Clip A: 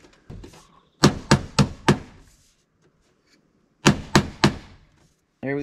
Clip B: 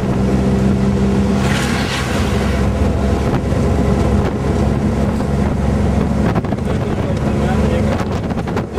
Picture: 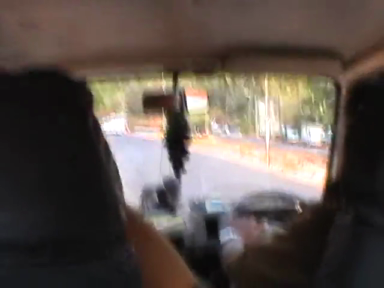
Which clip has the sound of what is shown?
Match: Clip B